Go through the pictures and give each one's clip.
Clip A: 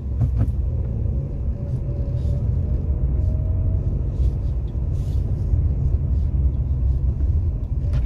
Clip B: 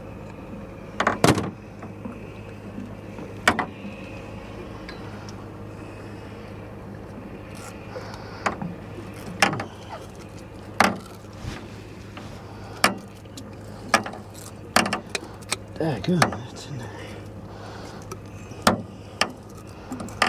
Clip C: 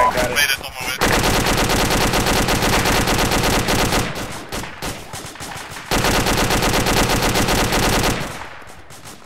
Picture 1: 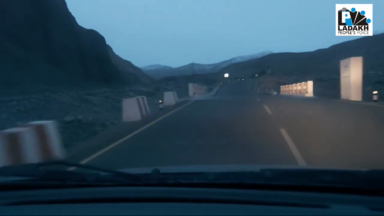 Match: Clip A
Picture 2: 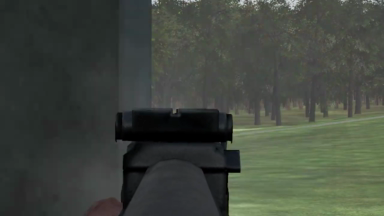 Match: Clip C